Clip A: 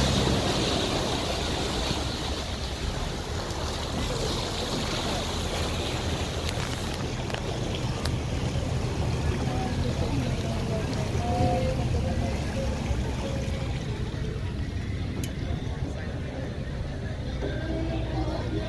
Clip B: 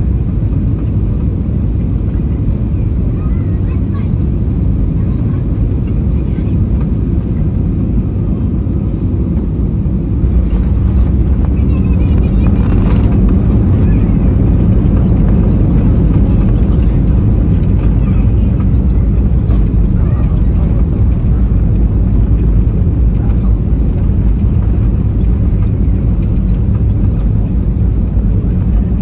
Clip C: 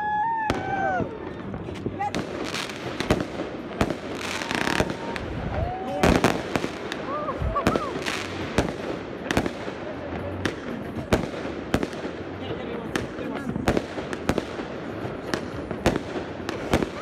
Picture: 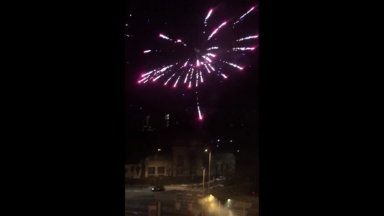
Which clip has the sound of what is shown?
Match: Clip C